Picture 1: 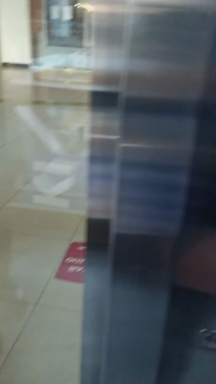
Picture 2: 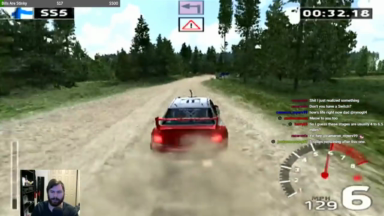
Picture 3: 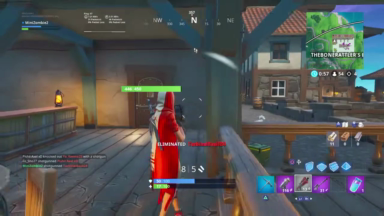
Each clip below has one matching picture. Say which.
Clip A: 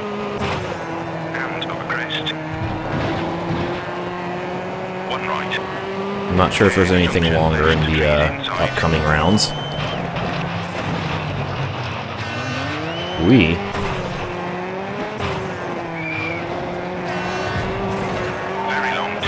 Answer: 2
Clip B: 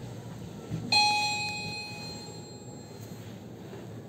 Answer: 1